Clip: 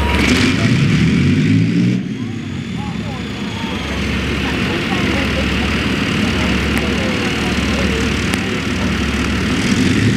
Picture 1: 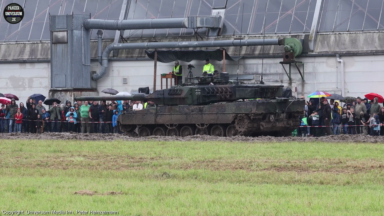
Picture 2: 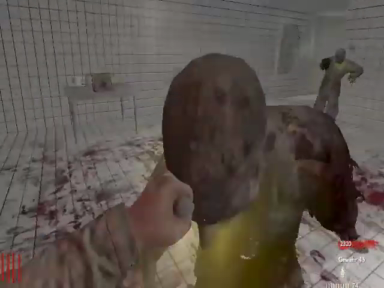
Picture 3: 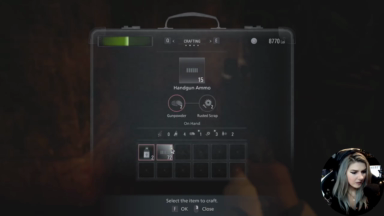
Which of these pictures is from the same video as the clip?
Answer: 1